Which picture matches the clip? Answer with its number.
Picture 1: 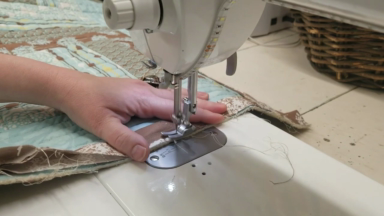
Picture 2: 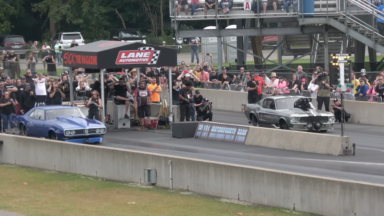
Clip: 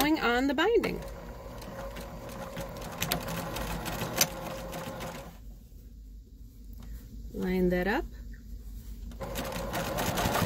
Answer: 1